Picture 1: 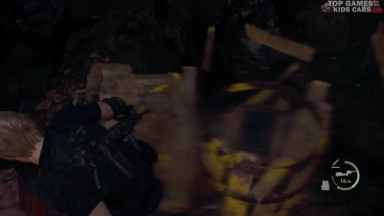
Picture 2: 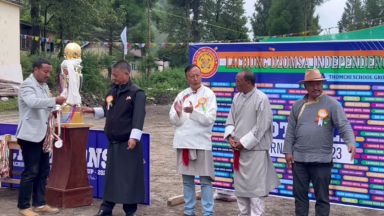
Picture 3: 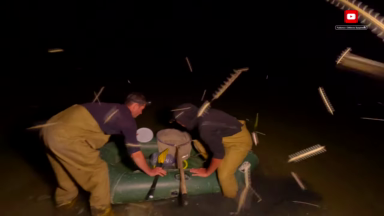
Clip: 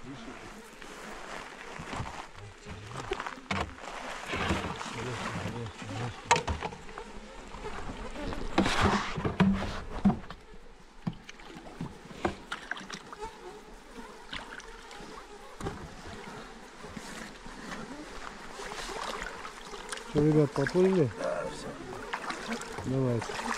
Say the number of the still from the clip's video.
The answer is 3